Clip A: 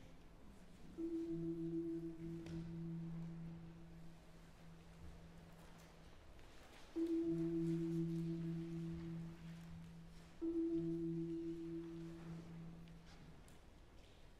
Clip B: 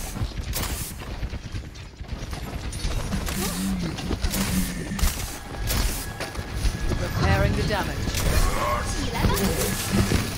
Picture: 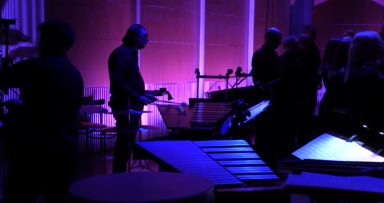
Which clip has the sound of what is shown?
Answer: A